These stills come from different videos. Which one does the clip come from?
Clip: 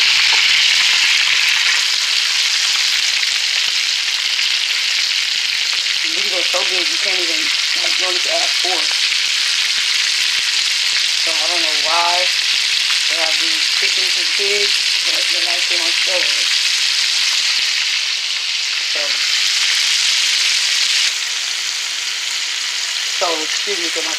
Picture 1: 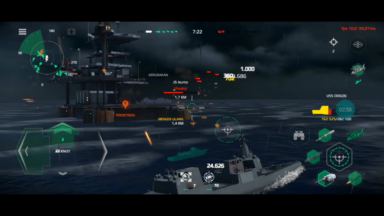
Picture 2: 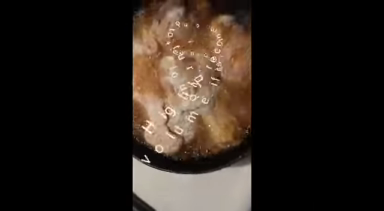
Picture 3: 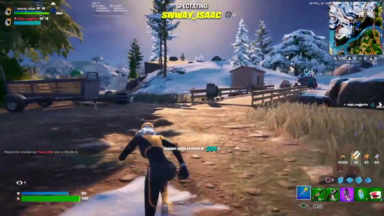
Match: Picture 2